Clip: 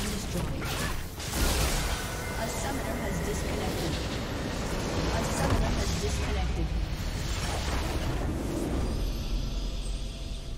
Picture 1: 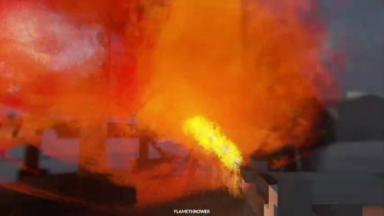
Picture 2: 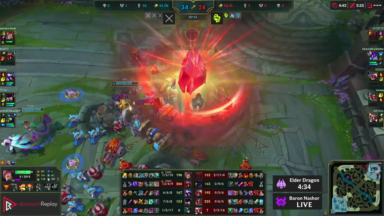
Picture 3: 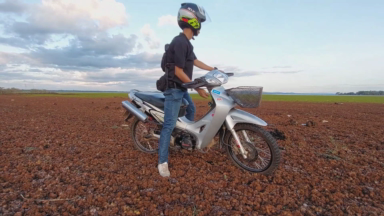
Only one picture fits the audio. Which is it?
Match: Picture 2